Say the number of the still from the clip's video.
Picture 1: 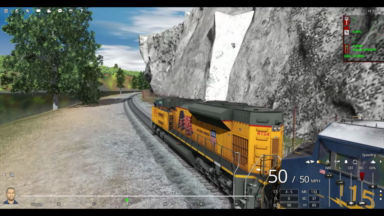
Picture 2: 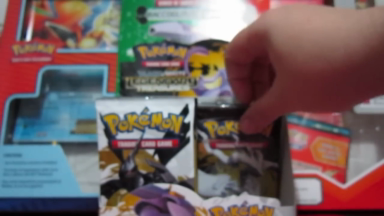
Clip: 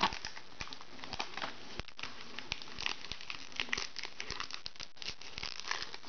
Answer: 2